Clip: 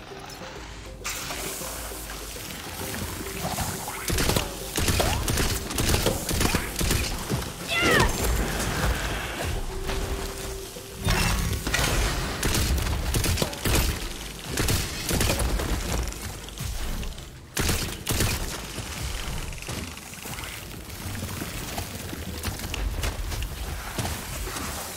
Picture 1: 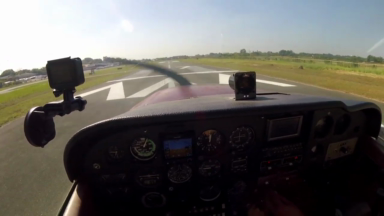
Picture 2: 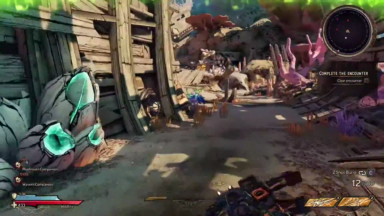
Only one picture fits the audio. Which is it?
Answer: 2